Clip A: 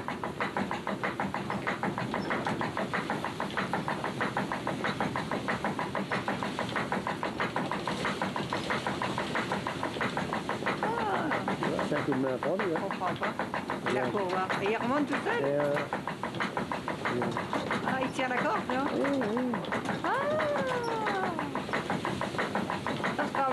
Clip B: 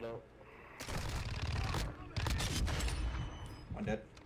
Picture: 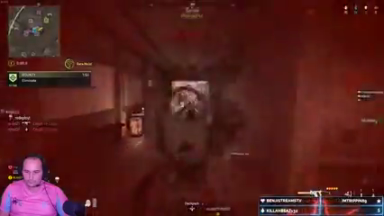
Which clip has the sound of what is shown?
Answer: B